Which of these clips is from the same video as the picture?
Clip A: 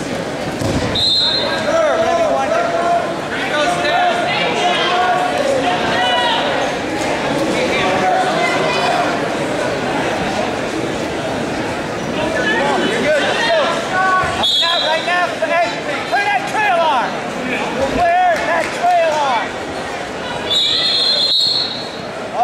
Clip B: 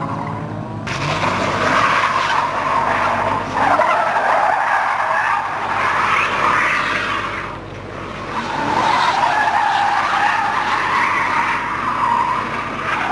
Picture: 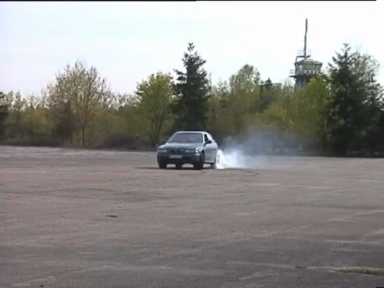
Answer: B